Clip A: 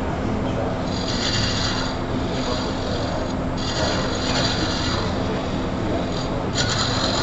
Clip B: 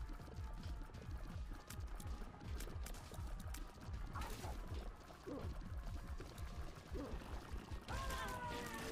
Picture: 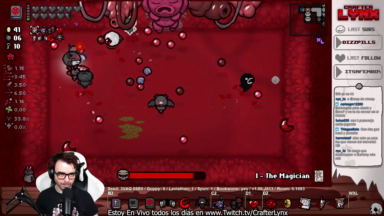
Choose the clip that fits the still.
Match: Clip B